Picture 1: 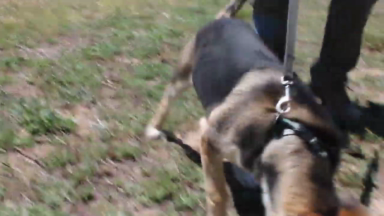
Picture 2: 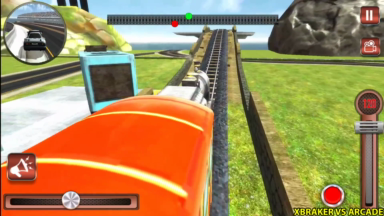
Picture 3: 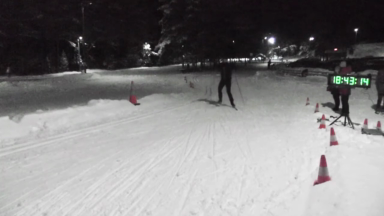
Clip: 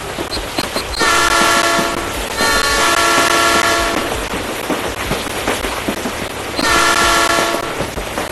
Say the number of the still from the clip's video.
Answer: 2